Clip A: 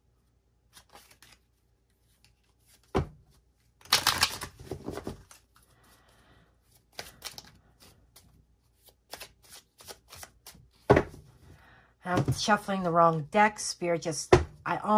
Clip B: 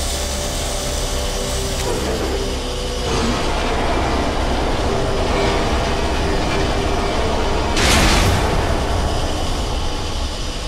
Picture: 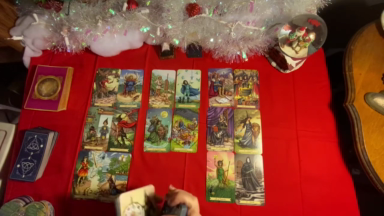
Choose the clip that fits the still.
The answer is A